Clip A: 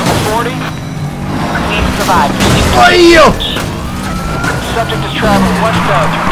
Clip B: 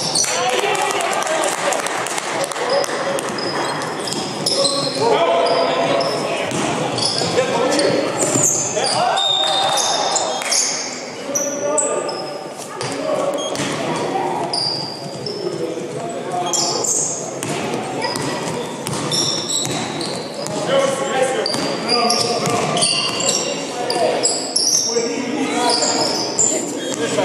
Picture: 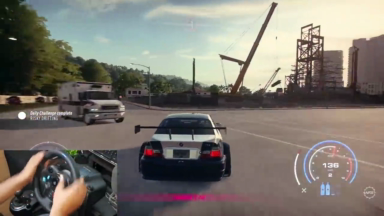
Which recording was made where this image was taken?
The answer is A